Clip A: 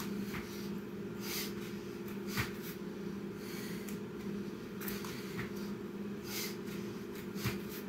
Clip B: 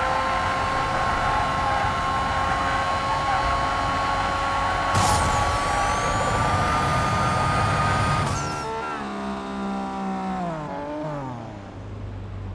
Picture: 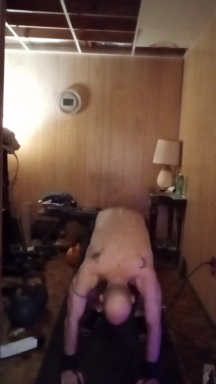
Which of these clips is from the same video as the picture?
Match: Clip A